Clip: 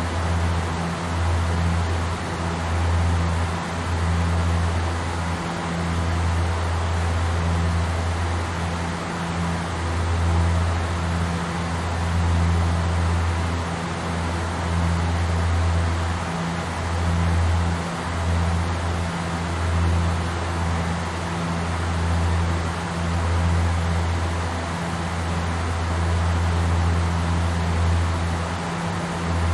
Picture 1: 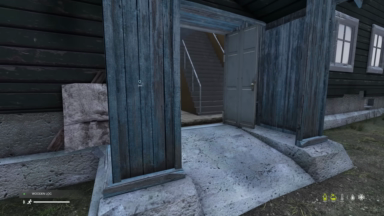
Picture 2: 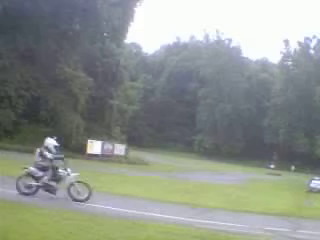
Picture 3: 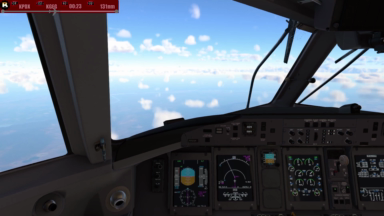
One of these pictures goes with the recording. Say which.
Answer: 3